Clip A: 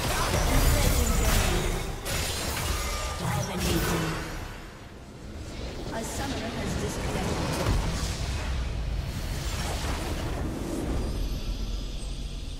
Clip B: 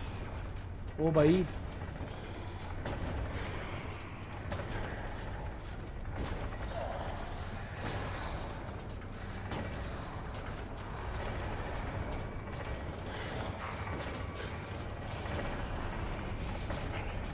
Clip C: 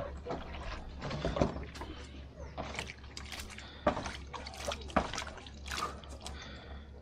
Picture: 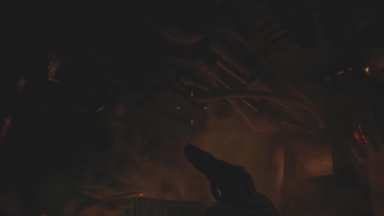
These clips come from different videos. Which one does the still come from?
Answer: B